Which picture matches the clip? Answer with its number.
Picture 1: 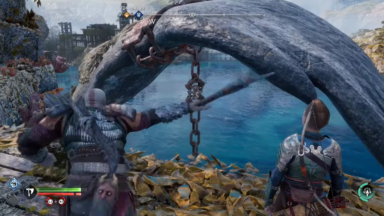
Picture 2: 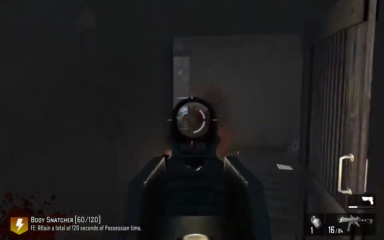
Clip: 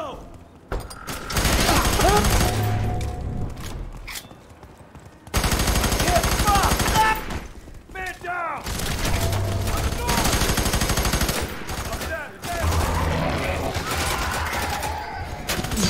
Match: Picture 2